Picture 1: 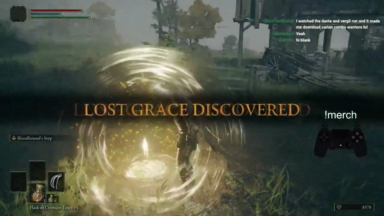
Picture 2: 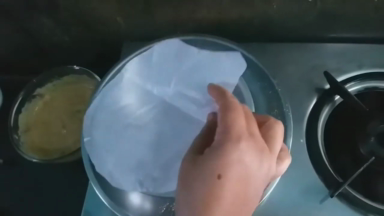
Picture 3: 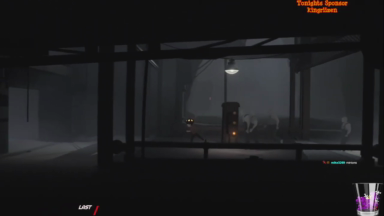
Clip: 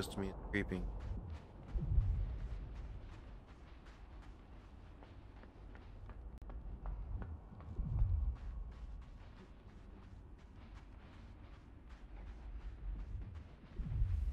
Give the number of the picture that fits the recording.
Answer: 3